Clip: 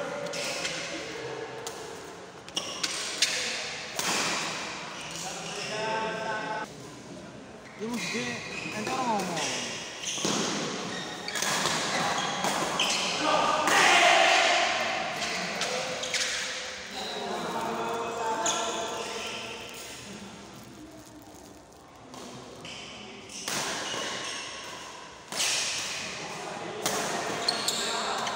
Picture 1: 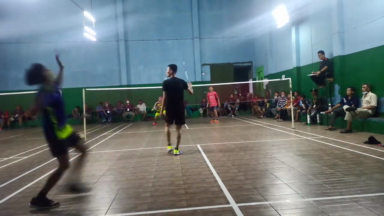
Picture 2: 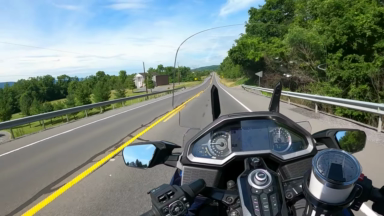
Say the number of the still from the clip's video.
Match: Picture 1